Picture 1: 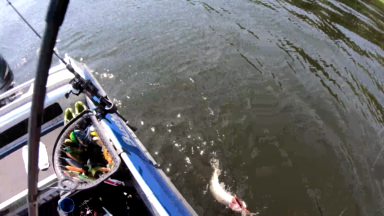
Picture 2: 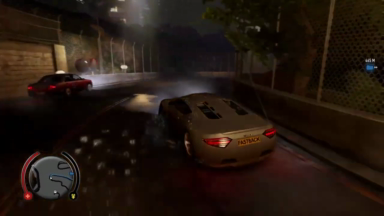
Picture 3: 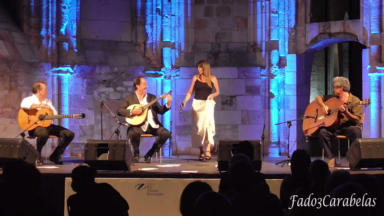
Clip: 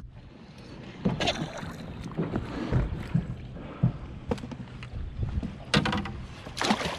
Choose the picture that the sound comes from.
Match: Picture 1